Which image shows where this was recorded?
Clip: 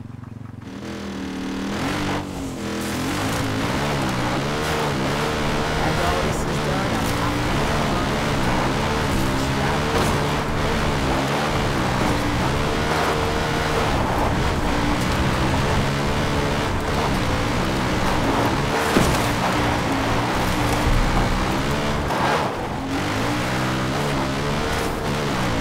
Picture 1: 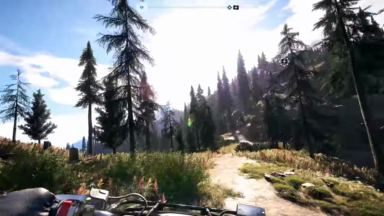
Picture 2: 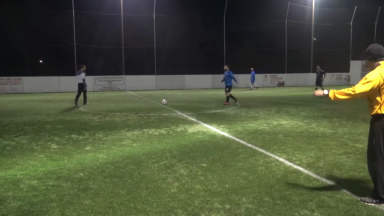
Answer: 1